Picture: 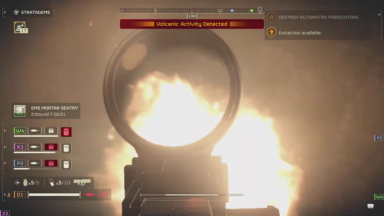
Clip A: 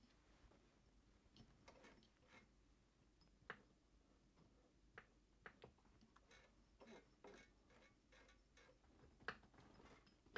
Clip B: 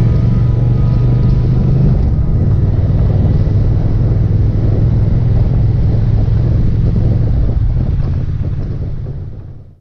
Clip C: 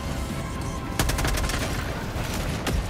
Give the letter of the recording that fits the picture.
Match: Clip C